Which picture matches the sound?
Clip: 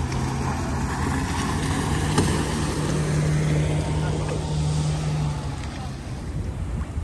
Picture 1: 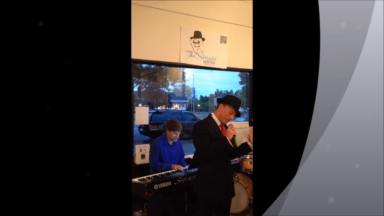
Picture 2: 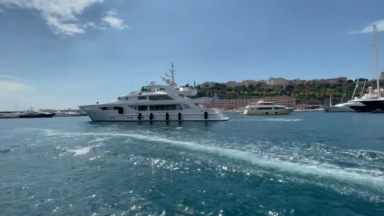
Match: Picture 2